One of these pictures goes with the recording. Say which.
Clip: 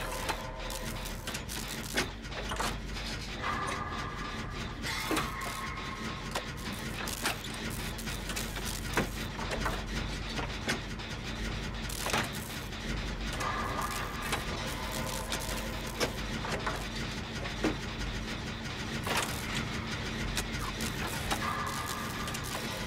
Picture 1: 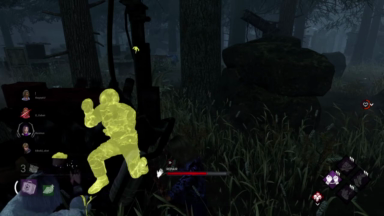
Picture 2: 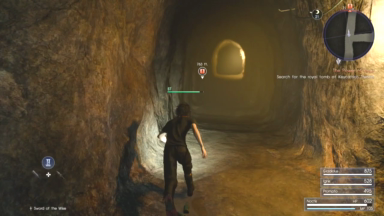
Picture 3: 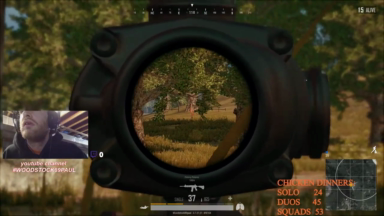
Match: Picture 1